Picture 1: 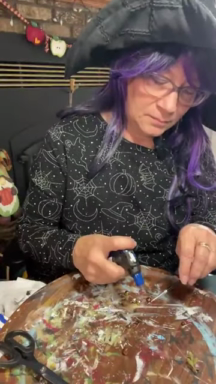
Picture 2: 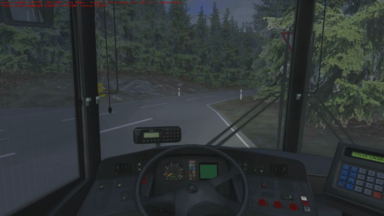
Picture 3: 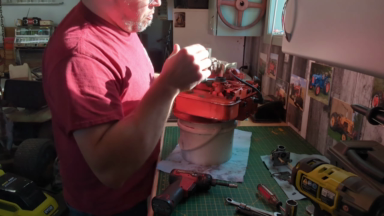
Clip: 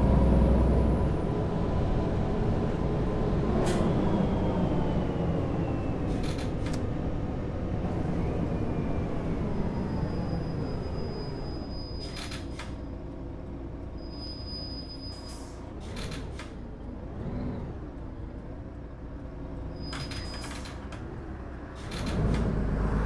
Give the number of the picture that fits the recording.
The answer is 2